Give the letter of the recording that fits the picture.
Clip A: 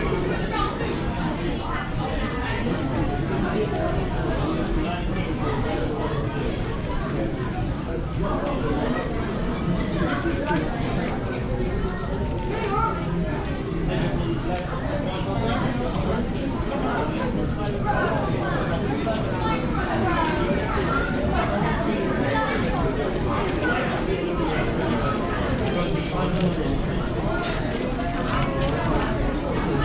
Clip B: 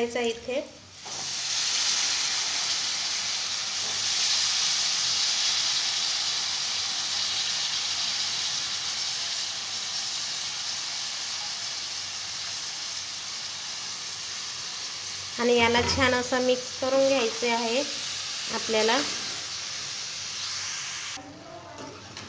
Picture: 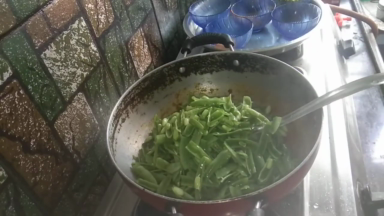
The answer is B